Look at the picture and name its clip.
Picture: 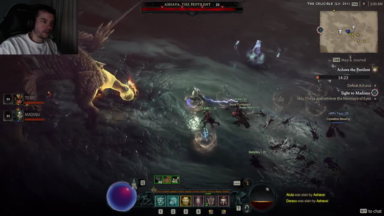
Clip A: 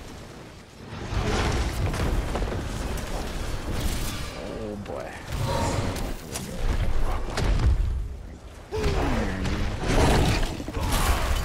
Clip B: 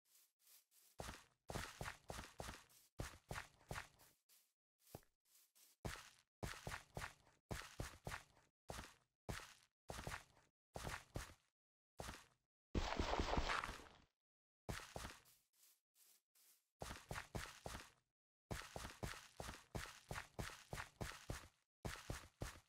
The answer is A